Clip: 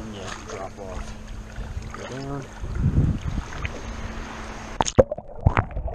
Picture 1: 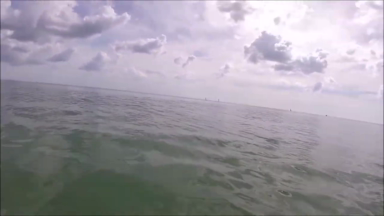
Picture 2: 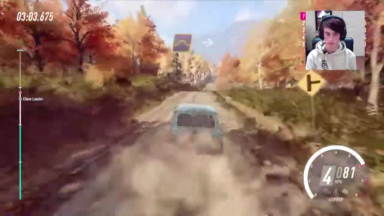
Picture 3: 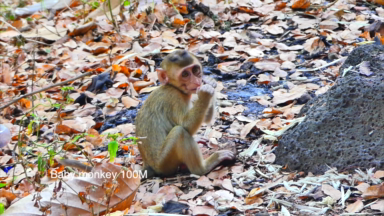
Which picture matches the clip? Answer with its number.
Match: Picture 1